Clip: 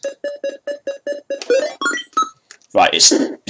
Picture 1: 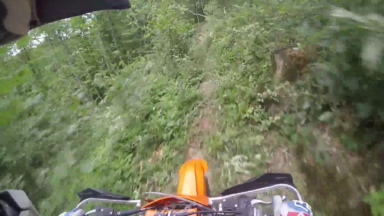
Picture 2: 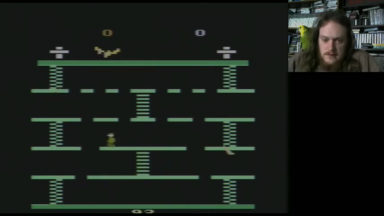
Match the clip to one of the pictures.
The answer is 2